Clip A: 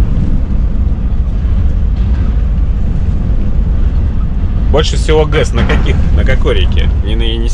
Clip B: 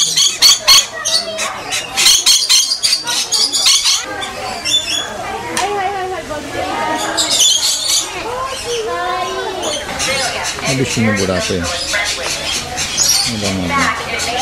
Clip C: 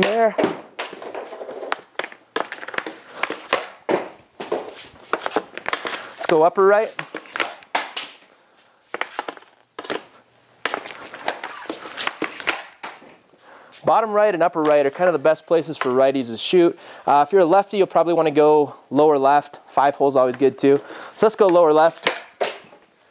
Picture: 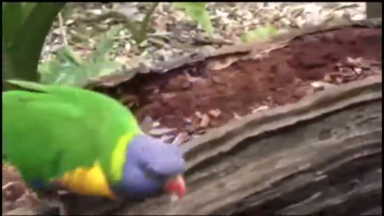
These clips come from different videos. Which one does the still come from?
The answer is B